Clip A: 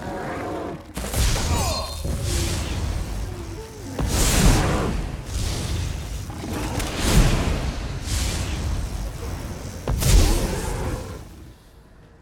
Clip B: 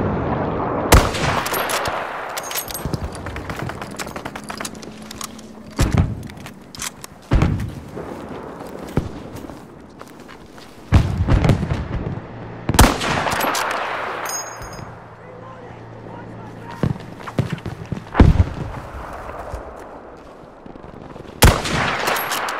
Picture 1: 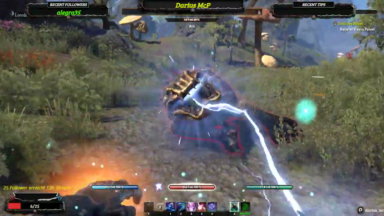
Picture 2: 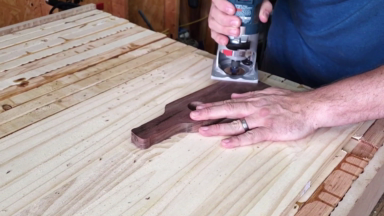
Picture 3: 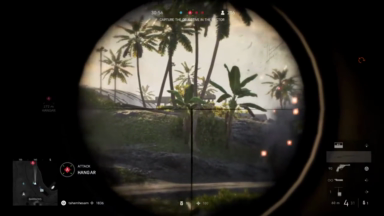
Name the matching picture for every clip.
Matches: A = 1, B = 3